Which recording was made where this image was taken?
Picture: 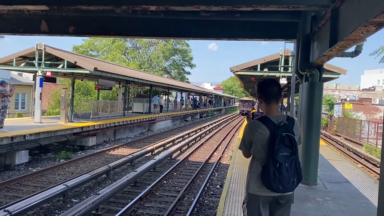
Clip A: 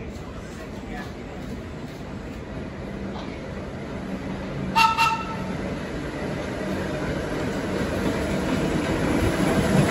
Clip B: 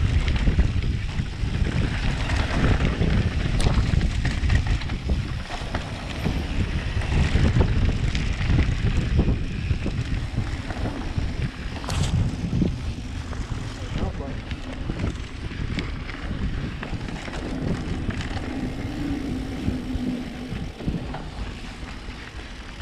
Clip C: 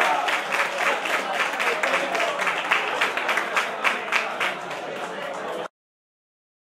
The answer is A